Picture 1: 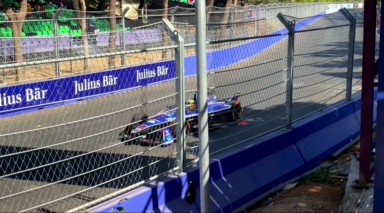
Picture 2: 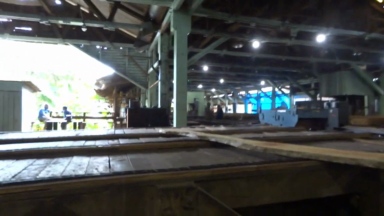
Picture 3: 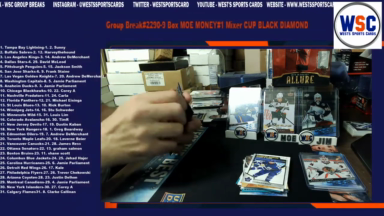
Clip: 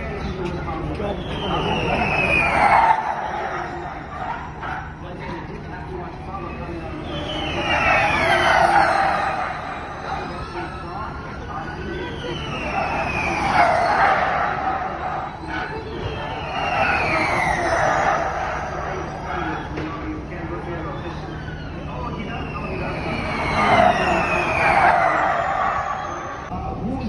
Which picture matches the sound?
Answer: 1